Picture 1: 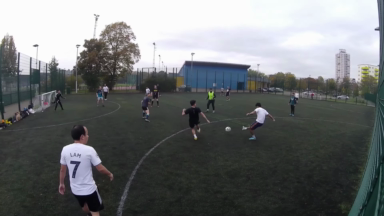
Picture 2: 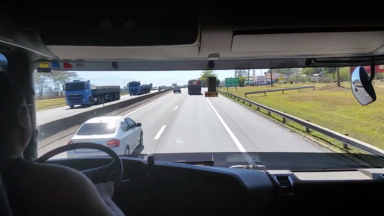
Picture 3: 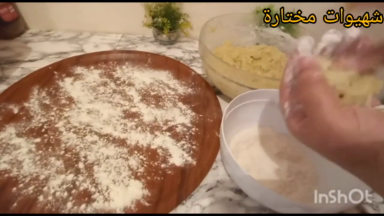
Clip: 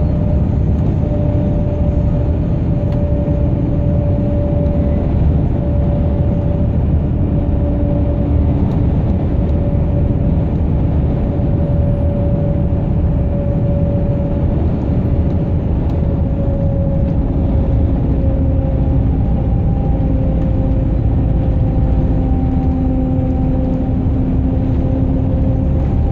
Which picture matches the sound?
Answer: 2